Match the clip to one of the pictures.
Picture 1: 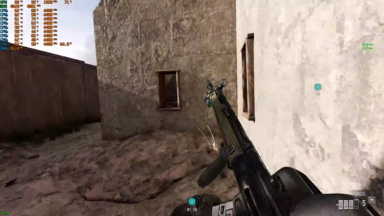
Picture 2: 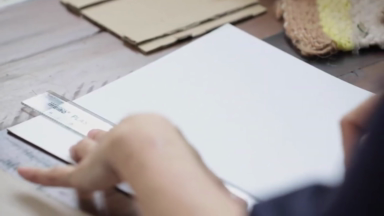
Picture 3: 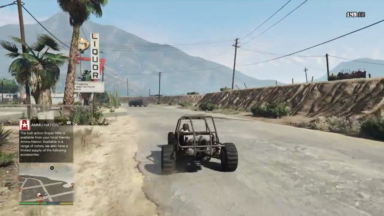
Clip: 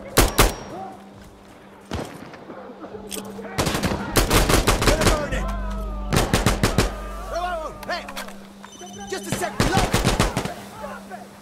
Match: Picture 1